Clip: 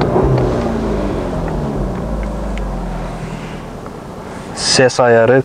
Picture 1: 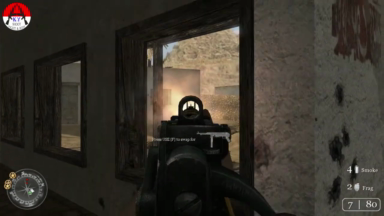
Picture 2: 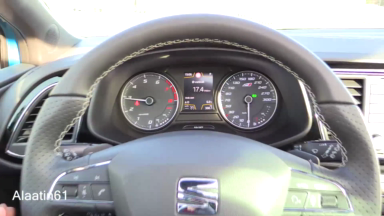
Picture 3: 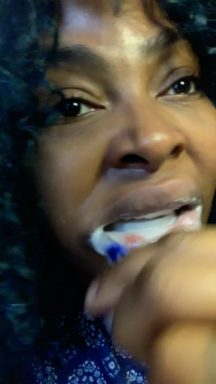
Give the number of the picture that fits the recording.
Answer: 2